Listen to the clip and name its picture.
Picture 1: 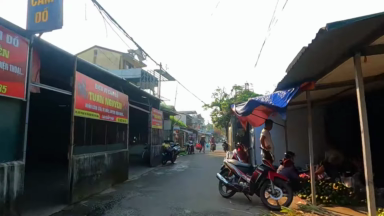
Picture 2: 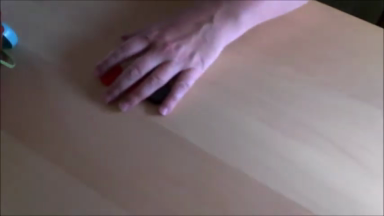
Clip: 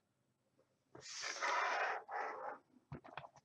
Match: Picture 2